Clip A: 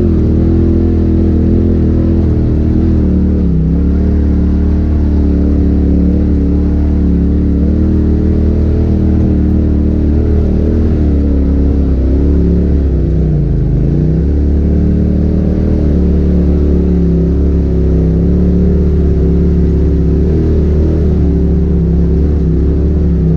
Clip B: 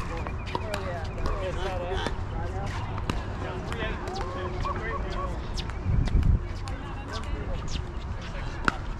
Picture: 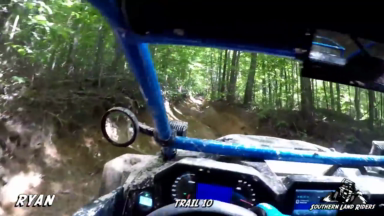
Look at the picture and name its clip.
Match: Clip A